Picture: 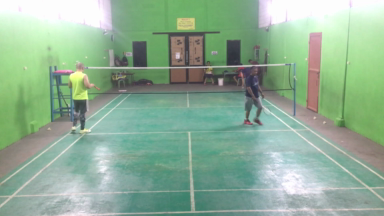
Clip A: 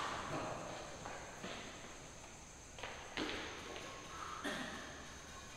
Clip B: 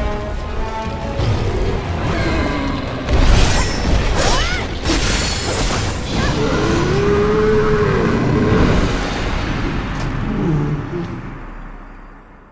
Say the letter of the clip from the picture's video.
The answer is A